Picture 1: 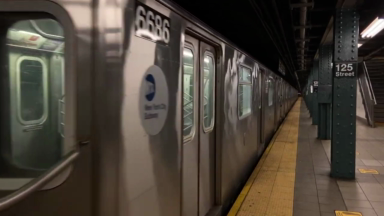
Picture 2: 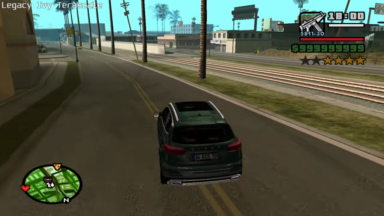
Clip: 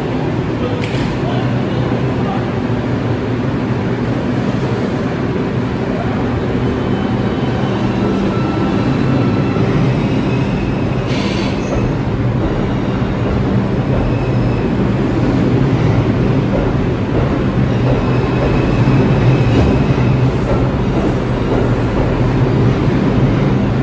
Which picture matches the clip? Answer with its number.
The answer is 1